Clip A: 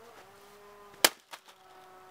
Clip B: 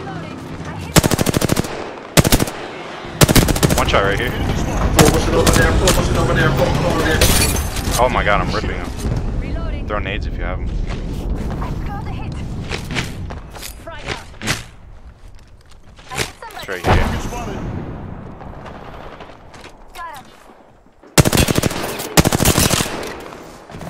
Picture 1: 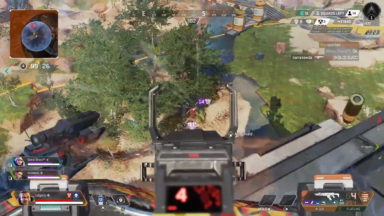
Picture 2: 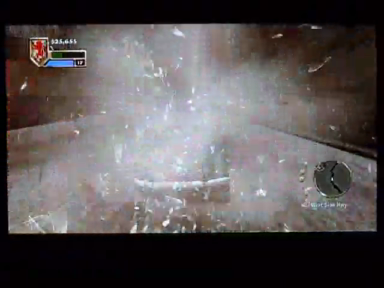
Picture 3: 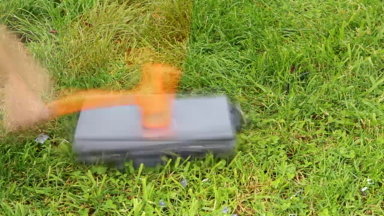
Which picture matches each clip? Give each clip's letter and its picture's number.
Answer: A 3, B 1